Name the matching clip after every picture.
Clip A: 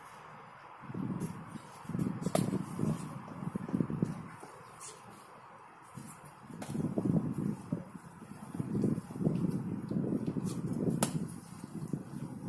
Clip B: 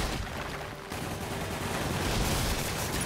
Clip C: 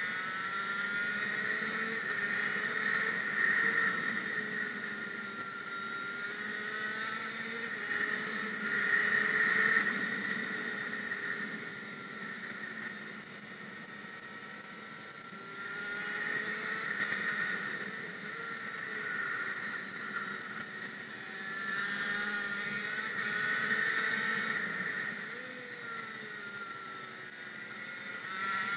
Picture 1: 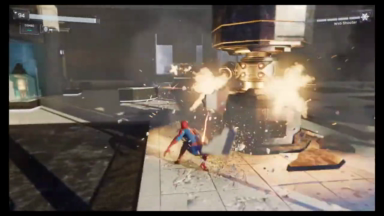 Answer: B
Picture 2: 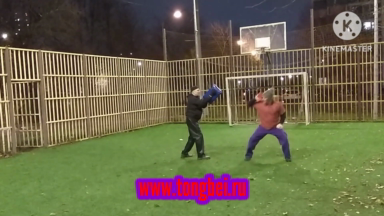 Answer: A